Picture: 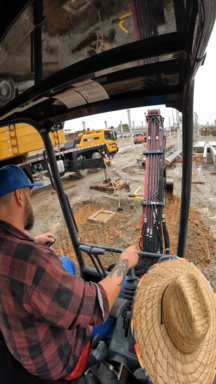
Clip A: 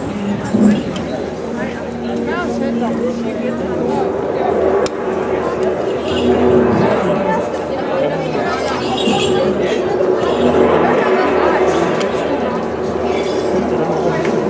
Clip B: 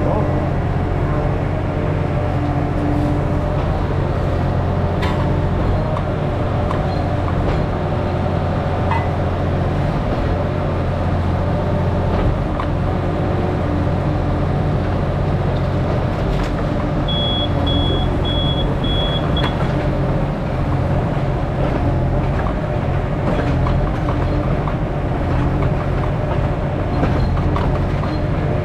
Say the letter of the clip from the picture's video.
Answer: B